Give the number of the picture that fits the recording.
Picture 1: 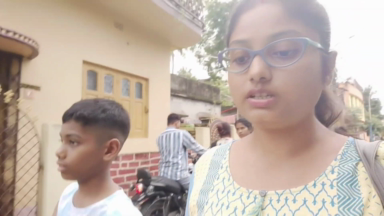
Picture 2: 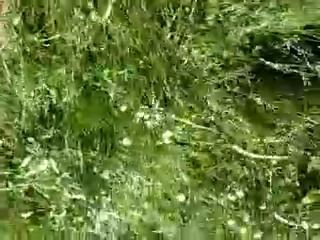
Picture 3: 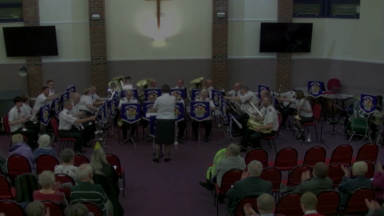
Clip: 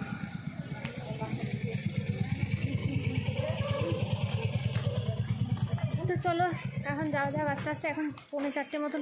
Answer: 1